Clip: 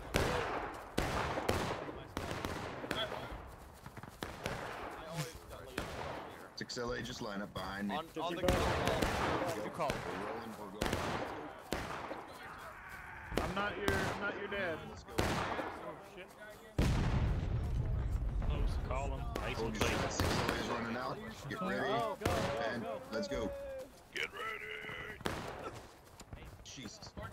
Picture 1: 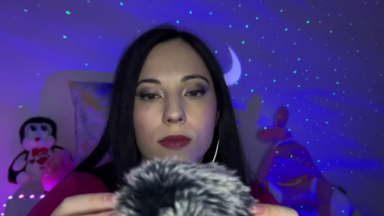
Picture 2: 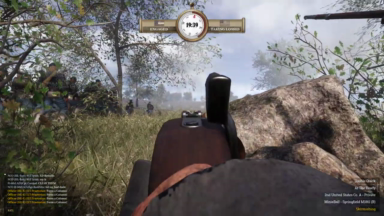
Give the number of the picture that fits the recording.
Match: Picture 2